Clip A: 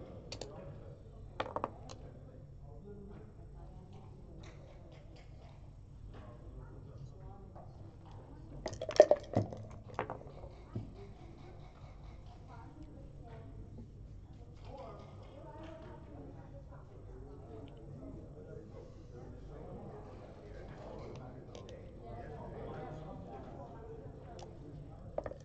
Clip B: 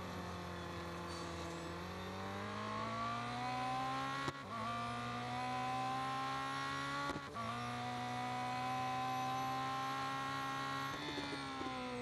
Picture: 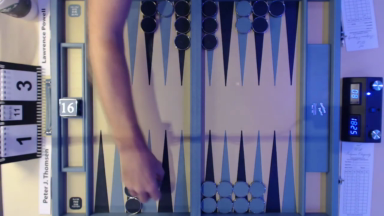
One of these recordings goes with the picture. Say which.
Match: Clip A